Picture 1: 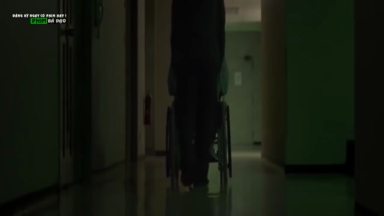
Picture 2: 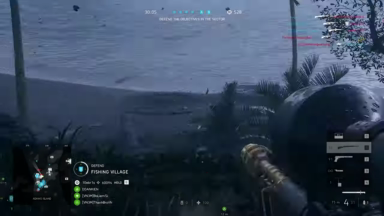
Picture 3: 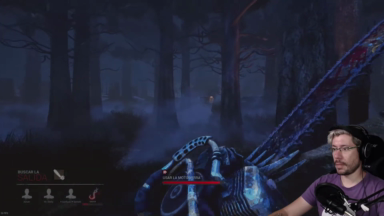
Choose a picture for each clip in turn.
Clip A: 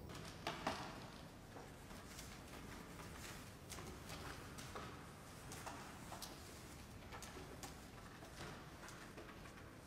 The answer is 1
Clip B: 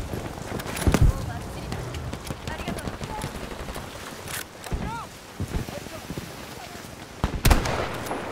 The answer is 2